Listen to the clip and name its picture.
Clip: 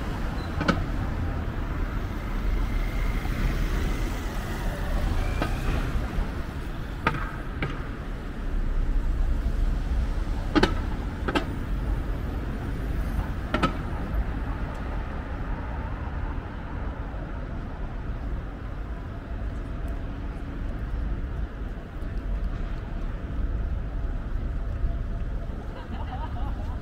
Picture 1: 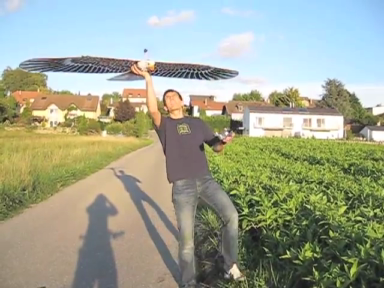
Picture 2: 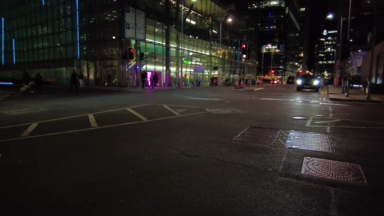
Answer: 2